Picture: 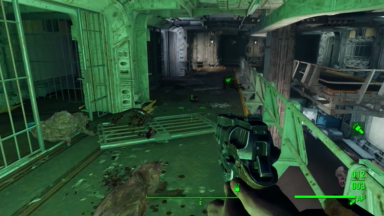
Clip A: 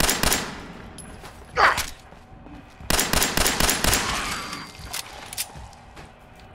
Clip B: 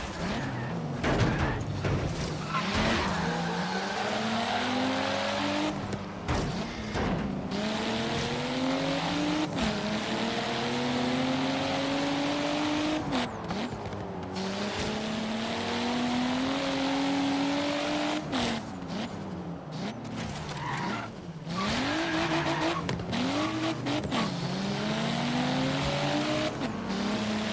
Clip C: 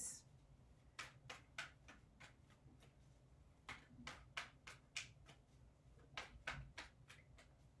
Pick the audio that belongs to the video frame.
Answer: A